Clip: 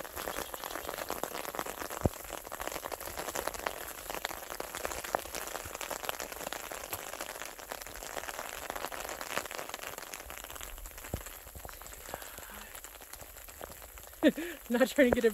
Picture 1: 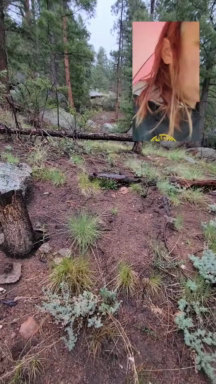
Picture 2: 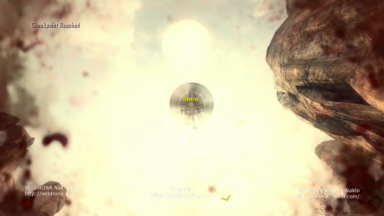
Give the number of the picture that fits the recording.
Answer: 1